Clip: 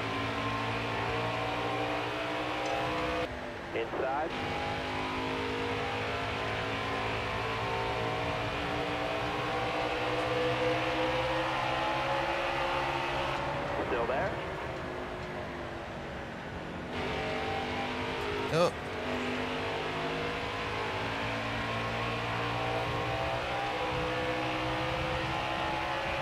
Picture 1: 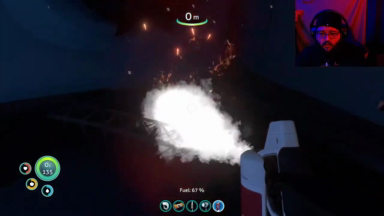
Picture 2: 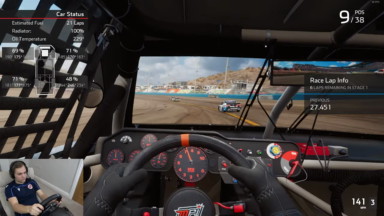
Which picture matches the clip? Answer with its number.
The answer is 2